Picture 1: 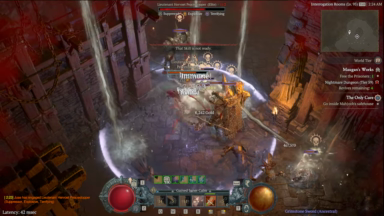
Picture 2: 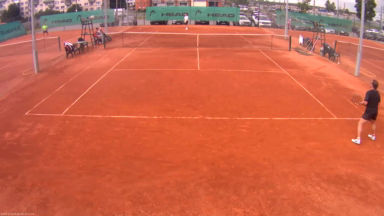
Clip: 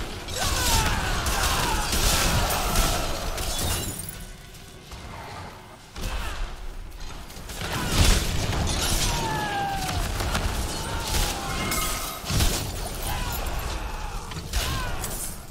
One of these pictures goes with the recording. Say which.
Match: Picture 1